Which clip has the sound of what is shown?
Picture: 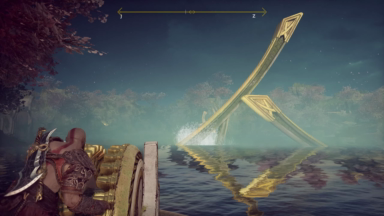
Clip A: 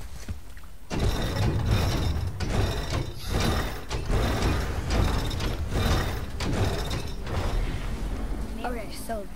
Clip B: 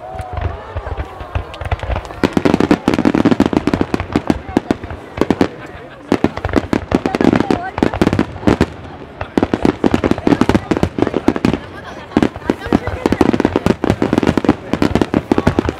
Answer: A